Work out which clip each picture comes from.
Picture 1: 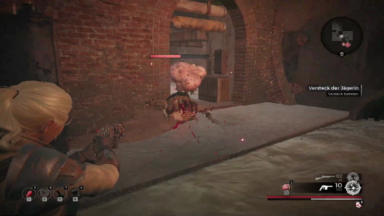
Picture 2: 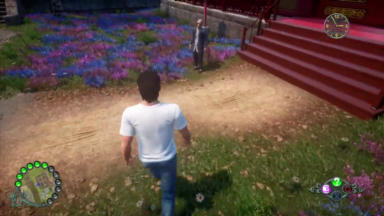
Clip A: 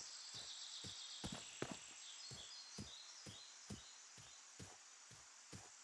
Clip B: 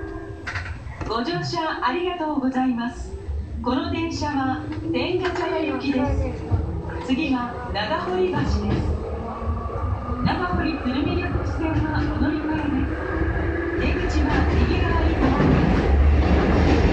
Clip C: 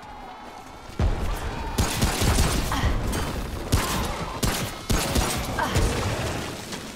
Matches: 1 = C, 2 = A